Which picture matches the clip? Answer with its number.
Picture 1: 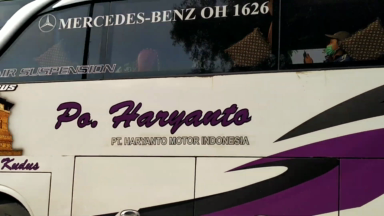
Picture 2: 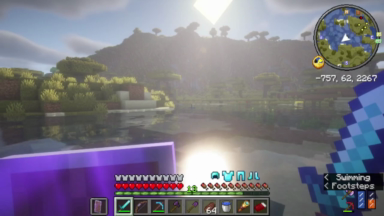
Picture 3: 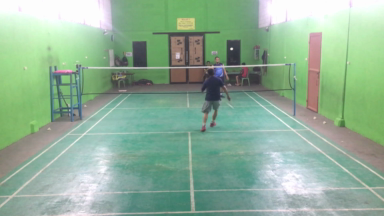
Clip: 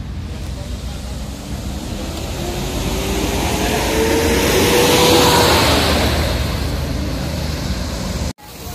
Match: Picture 1